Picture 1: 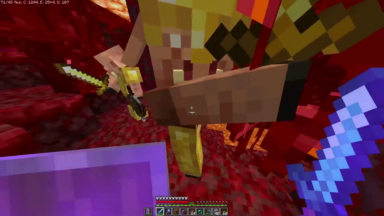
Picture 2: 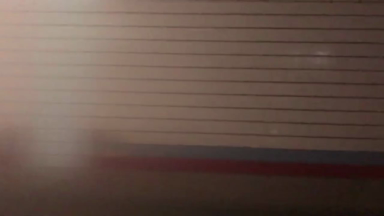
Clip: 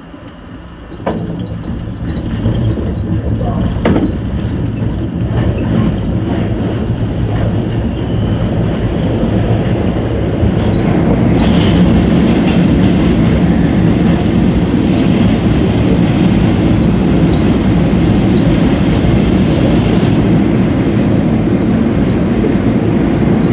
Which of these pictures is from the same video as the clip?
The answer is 2